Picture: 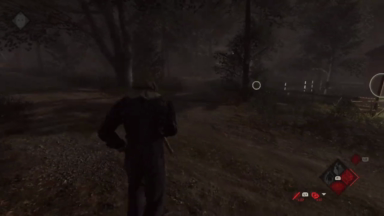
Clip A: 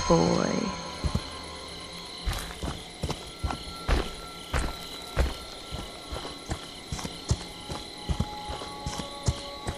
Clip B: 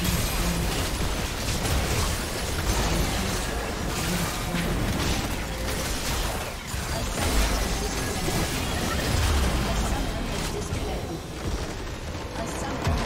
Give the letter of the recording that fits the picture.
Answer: A